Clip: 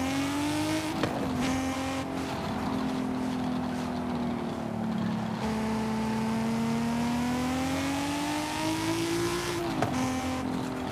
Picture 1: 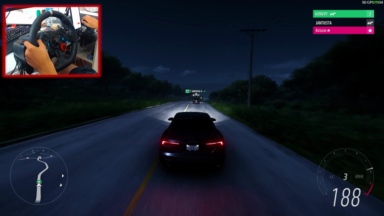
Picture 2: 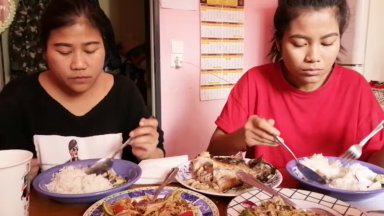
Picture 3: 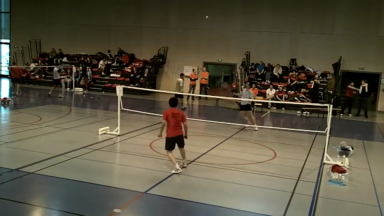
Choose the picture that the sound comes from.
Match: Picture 1